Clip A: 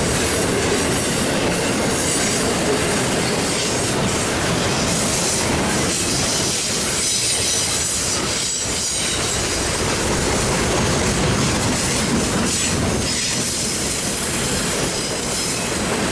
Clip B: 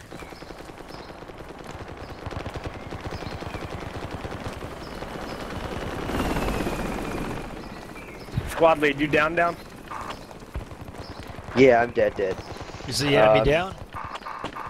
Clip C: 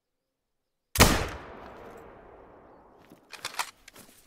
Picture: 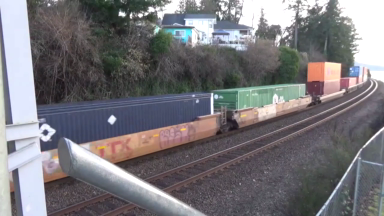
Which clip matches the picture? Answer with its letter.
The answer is A